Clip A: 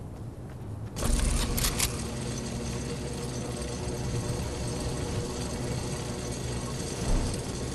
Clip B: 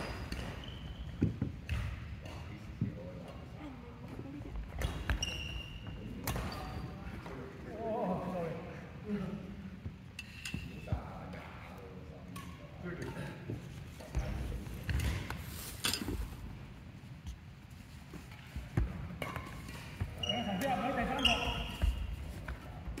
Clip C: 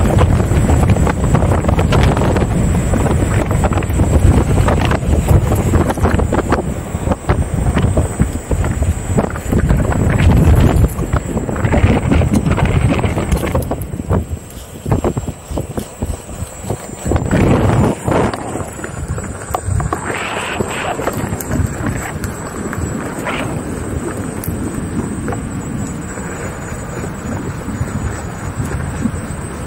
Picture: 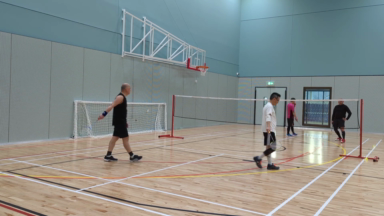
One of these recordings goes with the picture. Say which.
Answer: B